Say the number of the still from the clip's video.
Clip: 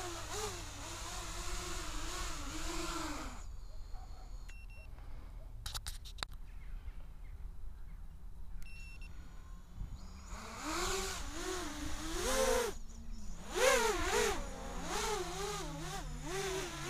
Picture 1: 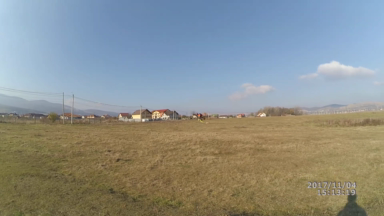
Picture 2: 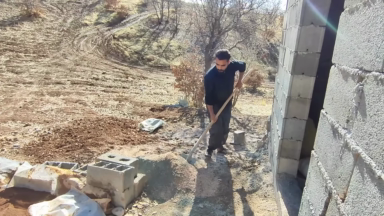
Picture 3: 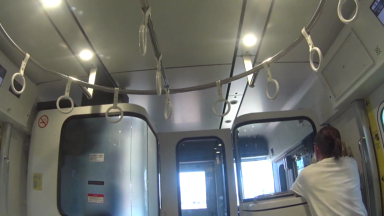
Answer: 1